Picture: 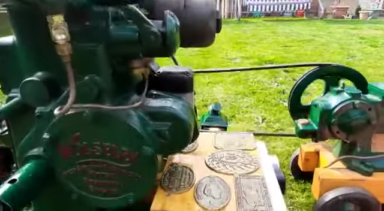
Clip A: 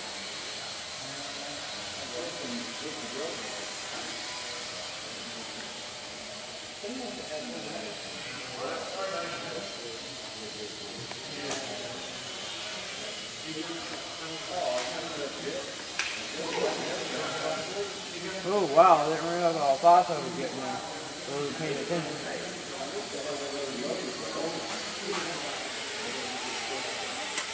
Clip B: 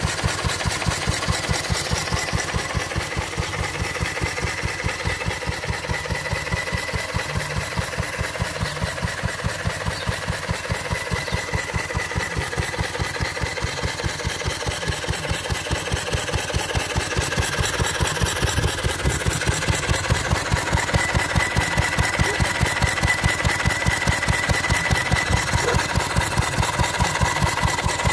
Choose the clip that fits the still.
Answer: B